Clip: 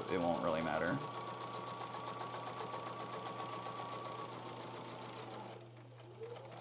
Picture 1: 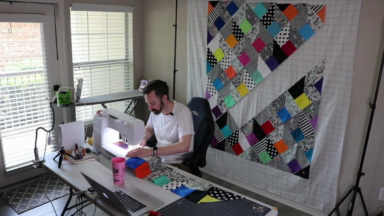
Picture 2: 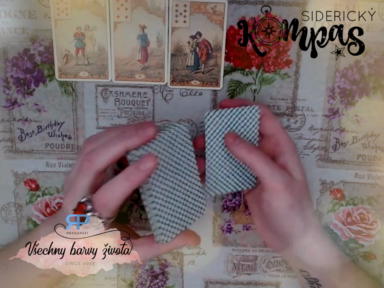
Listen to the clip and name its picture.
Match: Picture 1